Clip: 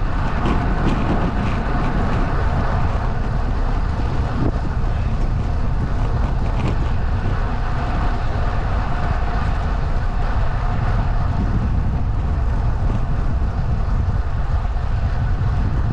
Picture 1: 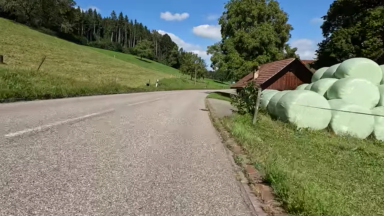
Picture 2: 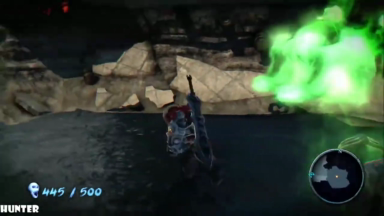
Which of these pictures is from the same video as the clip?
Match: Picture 1